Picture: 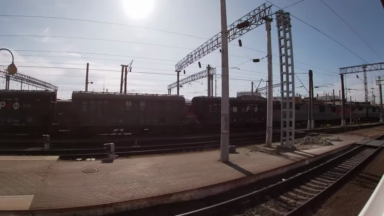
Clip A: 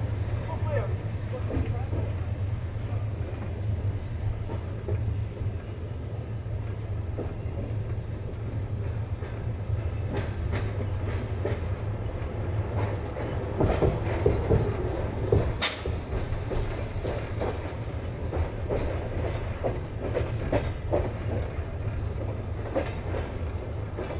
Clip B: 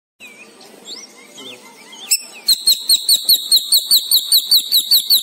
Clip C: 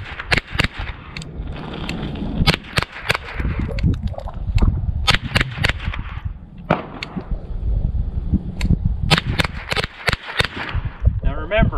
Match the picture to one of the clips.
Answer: A